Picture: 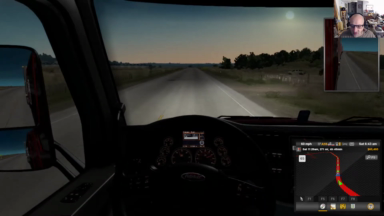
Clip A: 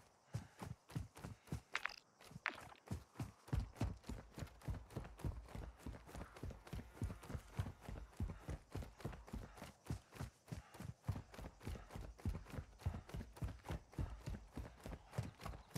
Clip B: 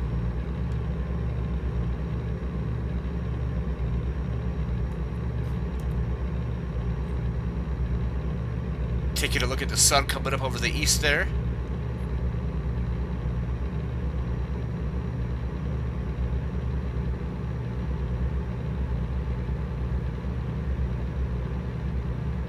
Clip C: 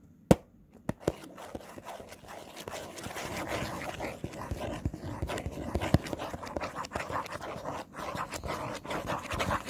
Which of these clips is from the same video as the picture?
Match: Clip B